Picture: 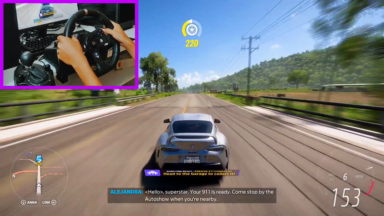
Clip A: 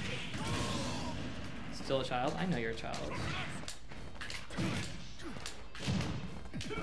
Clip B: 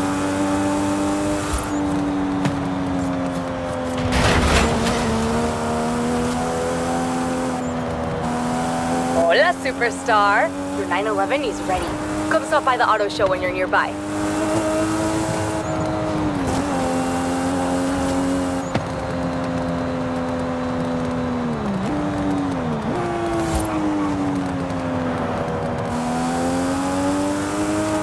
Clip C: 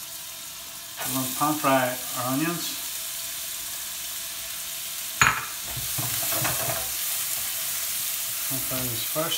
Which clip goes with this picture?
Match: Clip B